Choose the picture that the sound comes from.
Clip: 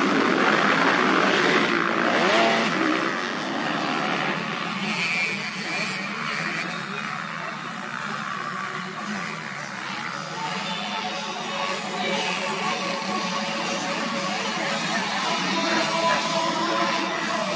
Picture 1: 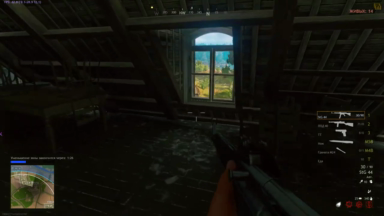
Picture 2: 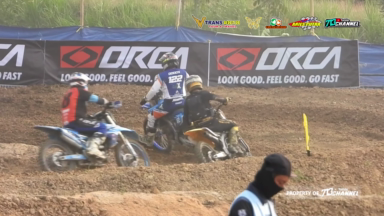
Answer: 2